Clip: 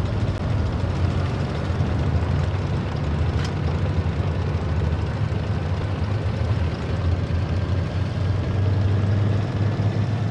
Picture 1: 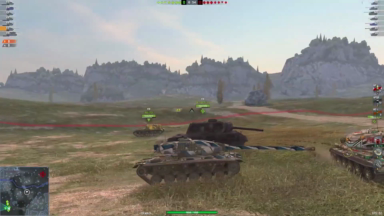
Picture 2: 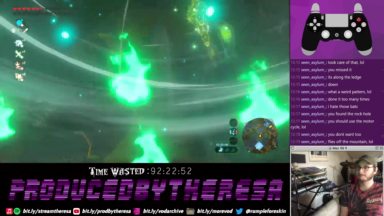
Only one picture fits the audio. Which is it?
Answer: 1